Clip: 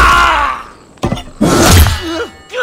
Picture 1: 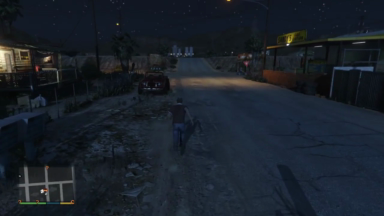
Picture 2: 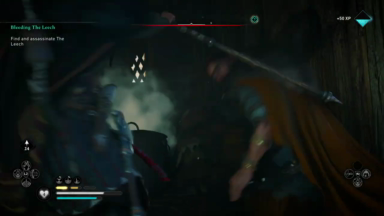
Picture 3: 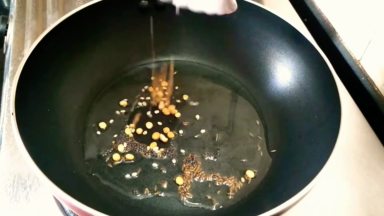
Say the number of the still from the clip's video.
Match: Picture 2